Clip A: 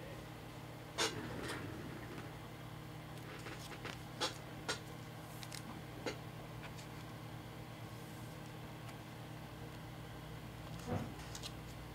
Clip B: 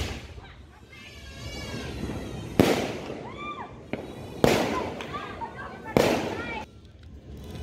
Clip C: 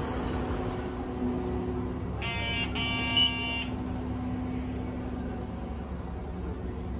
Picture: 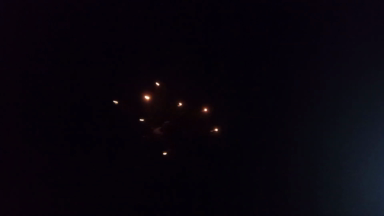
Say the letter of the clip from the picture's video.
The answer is B